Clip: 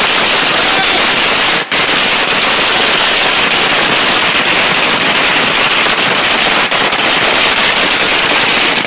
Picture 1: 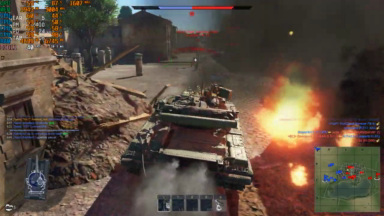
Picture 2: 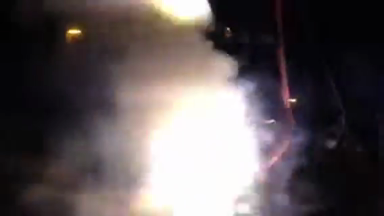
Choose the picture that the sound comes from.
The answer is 2